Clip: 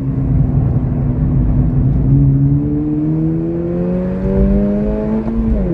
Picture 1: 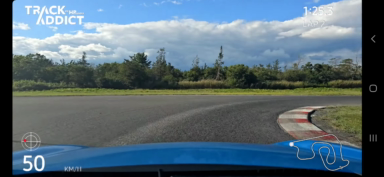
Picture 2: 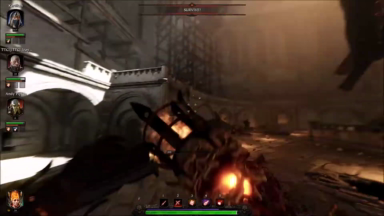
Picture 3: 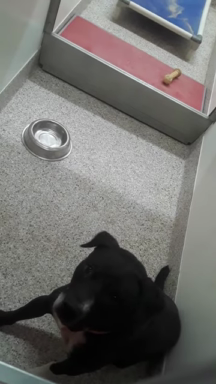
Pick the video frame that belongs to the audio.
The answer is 1